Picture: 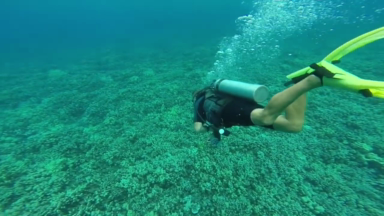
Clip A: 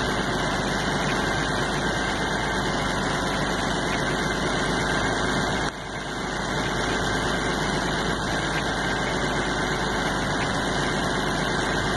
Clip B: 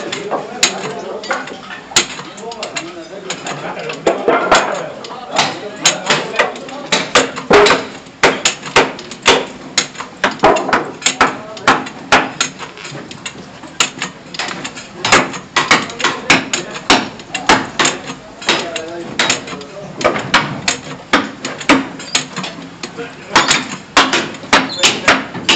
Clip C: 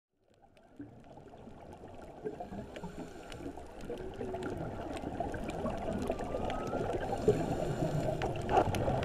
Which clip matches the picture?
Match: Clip C